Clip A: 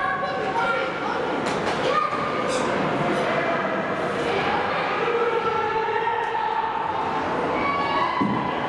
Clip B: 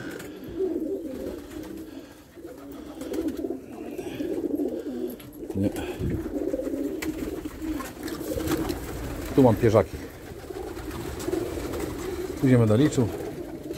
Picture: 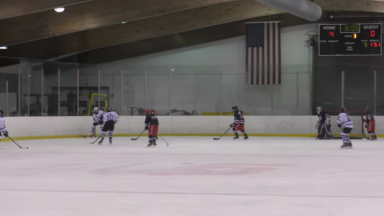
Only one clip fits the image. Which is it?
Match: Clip A